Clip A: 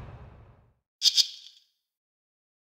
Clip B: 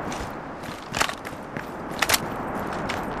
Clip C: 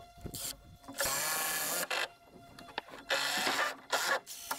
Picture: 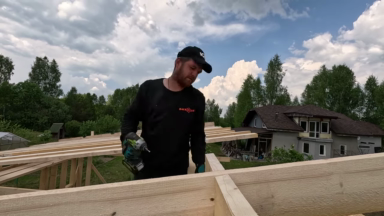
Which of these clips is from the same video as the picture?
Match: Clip C